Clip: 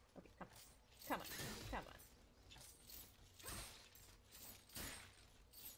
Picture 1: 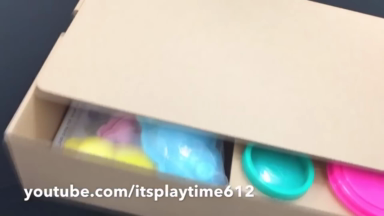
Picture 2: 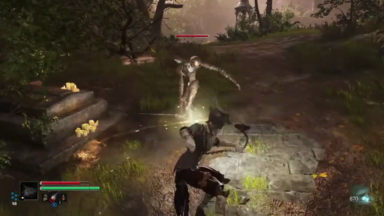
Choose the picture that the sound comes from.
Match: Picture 2